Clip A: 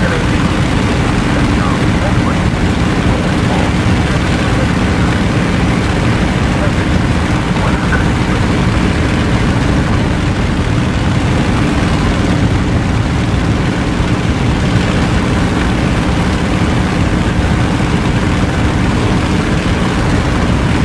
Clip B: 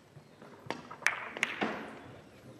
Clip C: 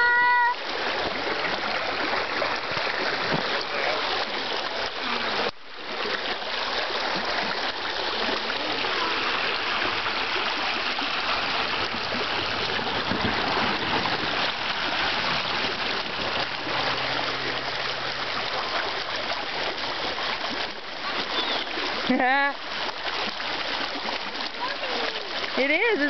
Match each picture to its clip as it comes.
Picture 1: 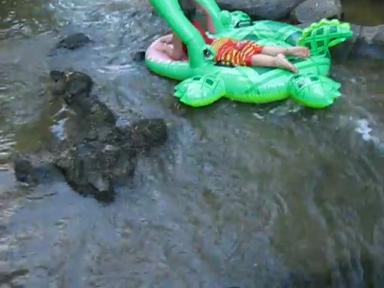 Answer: C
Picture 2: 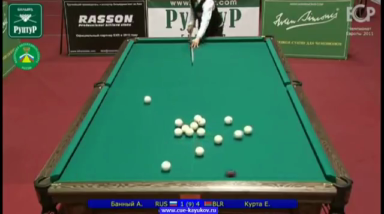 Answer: B